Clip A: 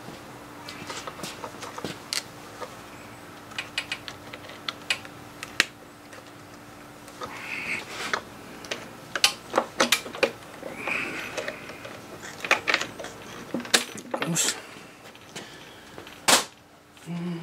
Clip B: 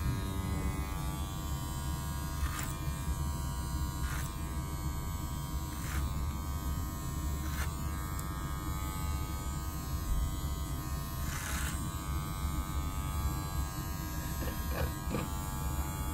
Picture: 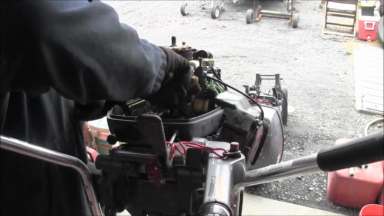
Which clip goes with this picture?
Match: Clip A